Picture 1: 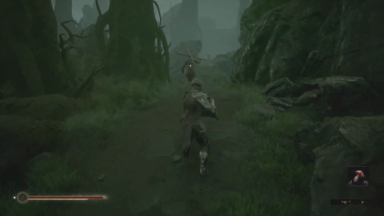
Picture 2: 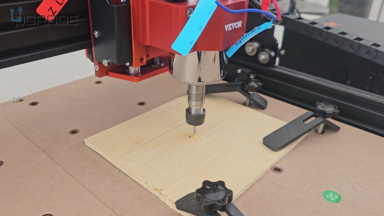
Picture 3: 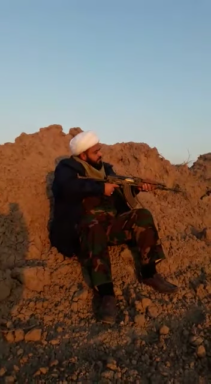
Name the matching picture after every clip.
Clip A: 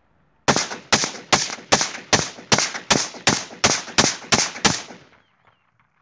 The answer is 3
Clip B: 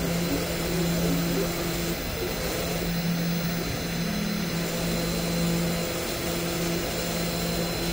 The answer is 2